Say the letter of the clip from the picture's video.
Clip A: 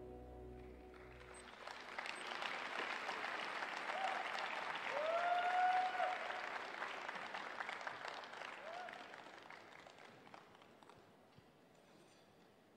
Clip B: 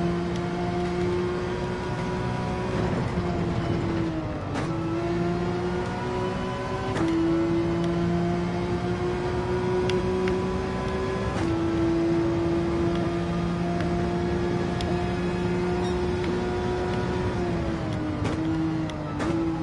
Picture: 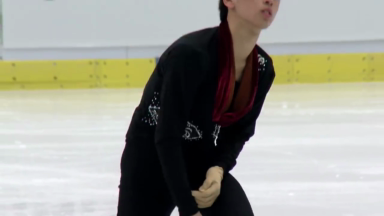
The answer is A